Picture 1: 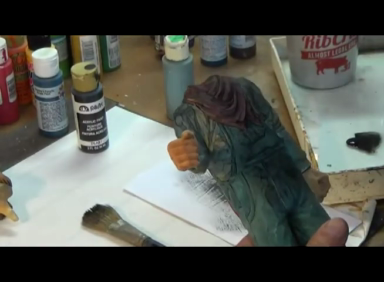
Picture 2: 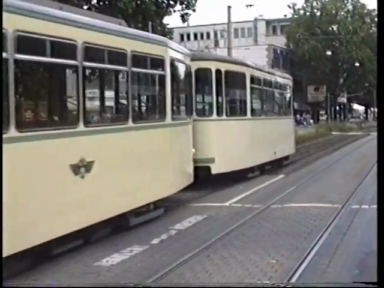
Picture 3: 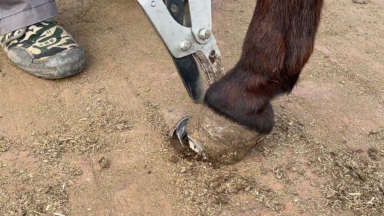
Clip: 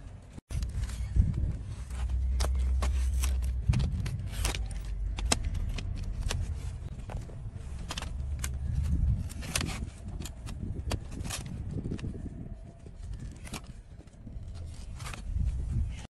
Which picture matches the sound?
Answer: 3